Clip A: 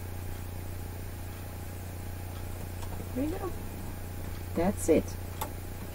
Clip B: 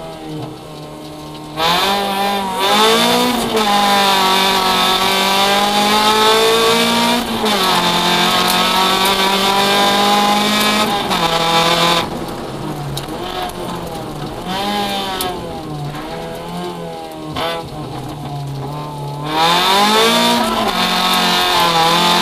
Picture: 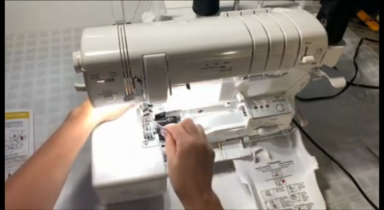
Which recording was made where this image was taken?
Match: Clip A